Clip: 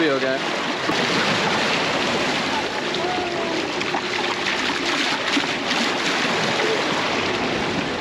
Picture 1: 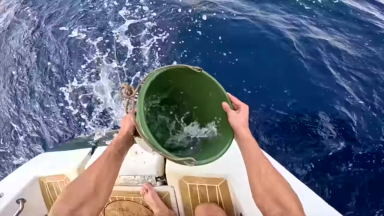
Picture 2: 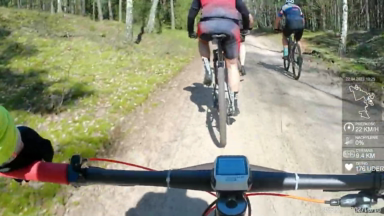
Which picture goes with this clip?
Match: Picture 1